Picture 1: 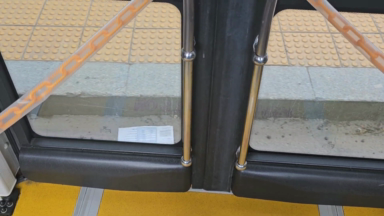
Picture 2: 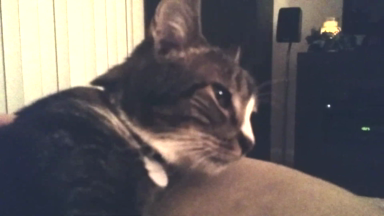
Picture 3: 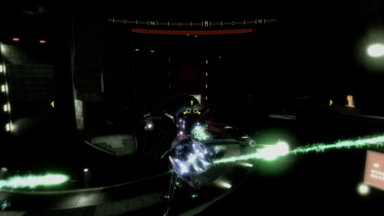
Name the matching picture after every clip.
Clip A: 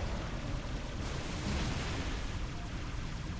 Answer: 3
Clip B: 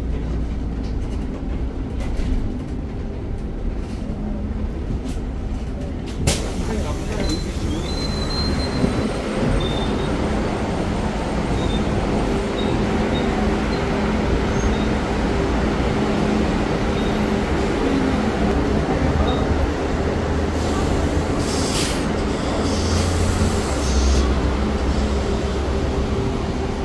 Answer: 1